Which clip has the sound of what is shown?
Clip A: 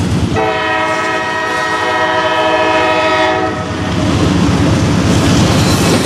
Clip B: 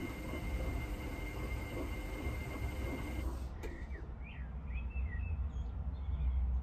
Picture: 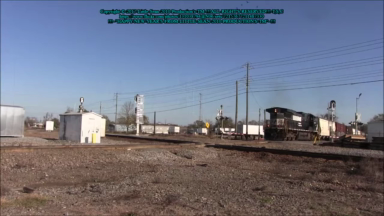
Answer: A